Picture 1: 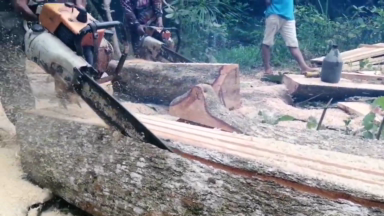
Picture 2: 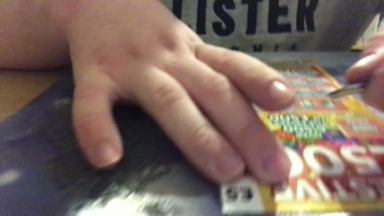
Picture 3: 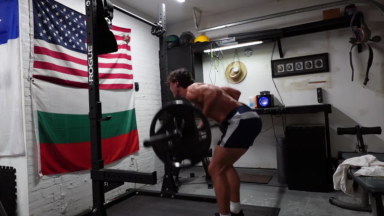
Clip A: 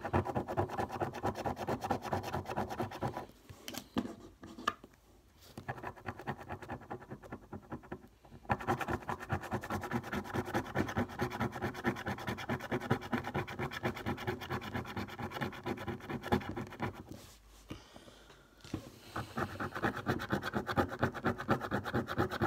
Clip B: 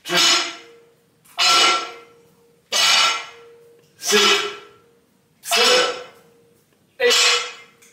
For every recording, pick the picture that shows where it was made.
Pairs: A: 2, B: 3